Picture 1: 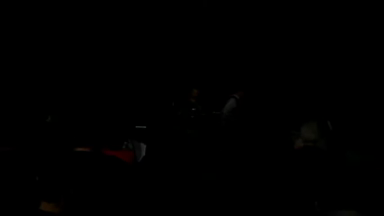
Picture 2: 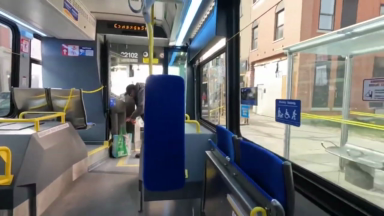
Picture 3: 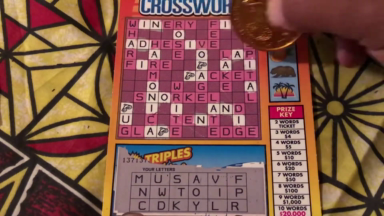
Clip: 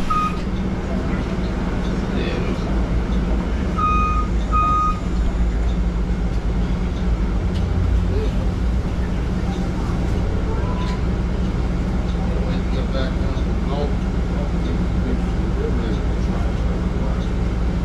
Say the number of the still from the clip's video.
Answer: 2